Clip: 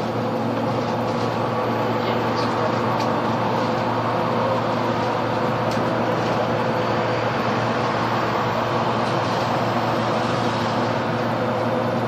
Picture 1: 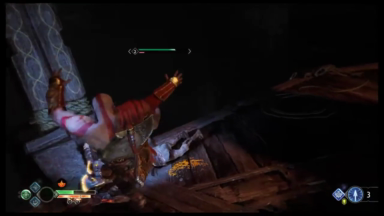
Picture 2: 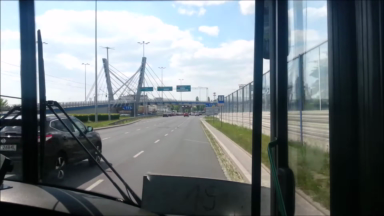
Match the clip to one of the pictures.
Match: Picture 2